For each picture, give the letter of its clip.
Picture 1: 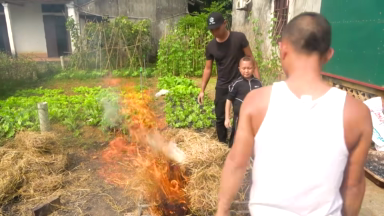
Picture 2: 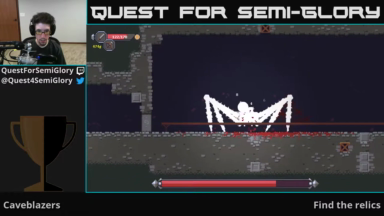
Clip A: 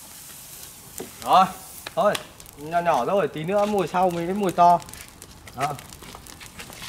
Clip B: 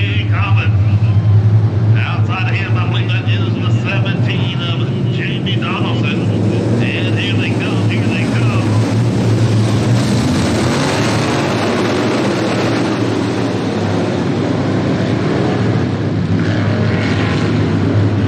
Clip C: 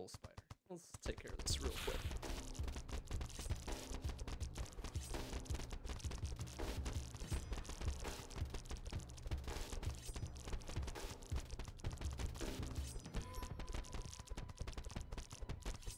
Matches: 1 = A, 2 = C